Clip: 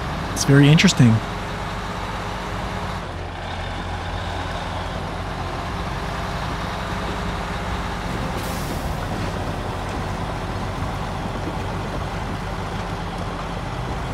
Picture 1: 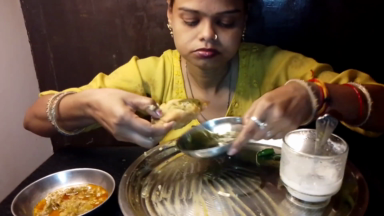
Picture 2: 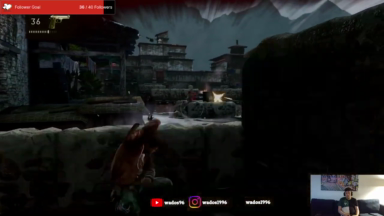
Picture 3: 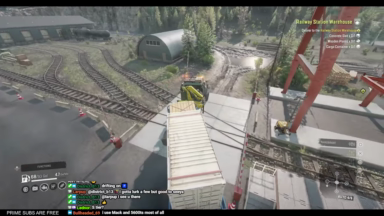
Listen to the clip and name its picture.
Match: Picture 3